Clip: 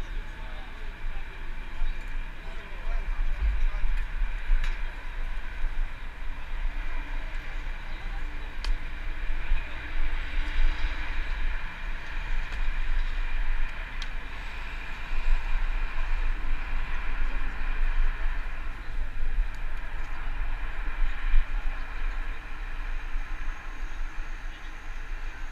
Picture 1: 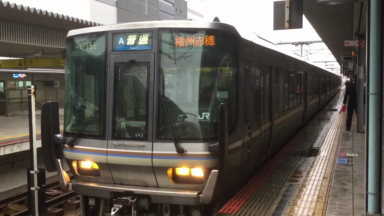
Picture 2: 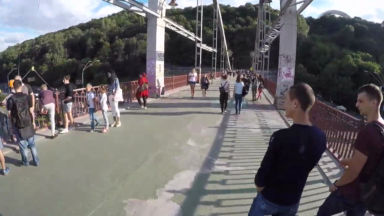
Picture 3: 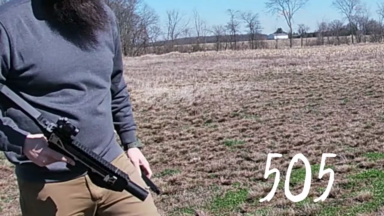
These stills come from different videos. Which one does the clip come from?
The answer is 2